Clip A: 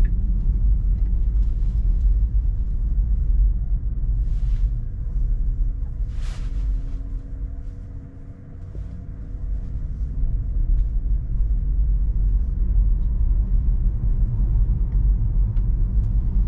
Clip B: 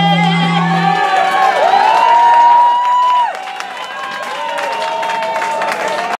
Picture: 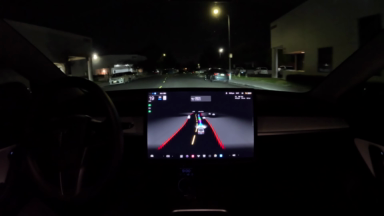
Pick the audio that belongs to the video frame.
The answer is A